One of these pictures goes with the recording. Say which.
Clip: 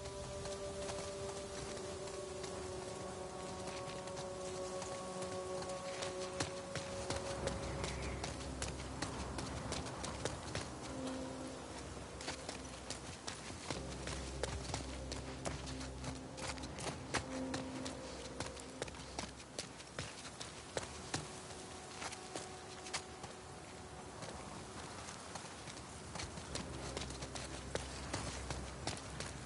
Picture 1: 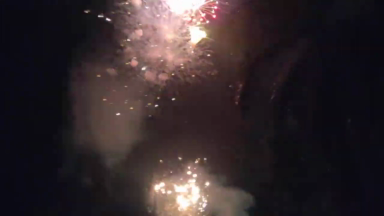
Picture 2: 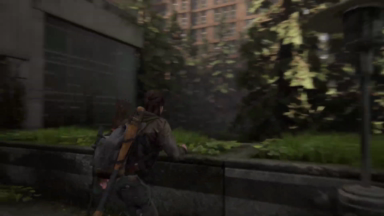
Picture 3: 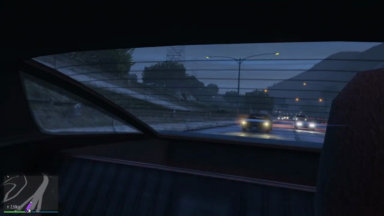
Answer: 2